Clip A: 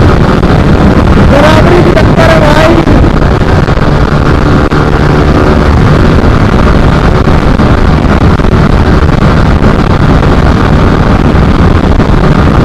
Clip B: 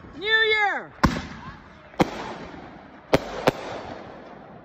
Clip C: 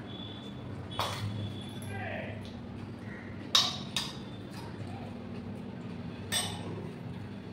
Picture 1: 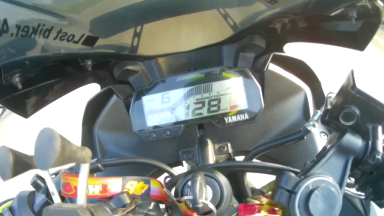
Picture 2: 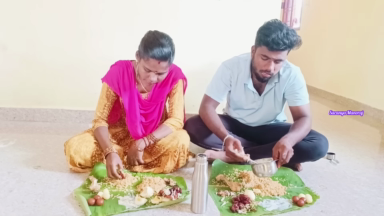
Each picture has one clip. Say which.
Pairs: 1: A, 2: C